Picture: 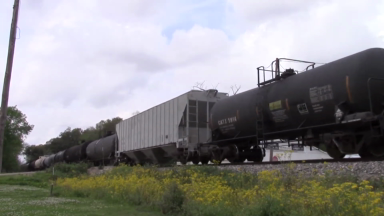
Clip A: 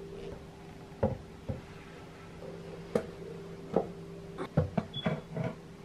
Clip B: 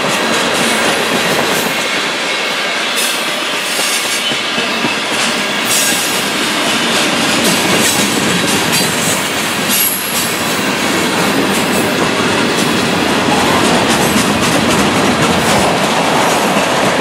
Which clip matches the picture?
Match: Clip B